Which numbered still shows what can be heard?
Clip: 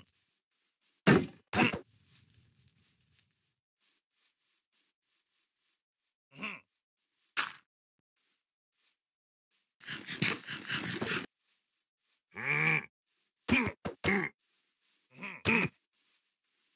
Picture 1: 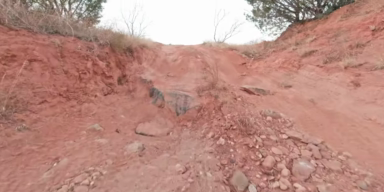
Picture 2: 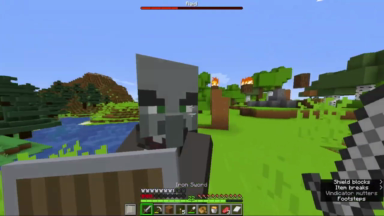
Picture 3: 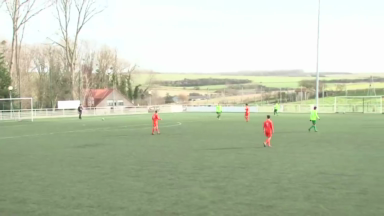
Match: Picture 2